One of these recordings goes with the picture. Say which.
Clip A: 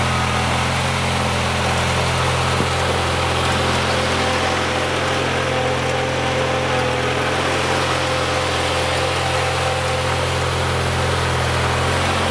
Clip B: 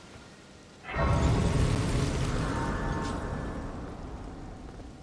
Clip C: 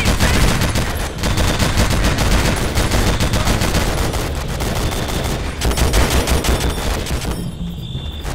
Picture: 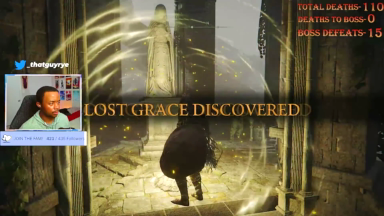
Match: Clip B